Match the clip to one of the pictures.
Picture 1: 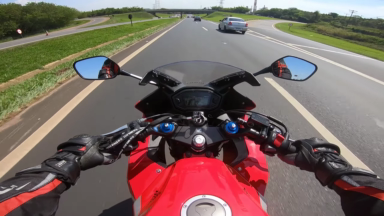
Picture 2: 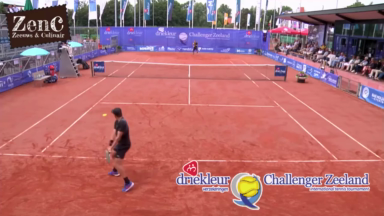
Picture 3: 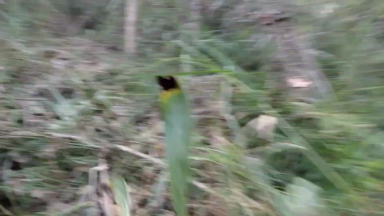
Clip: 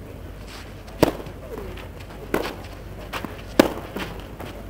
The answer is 2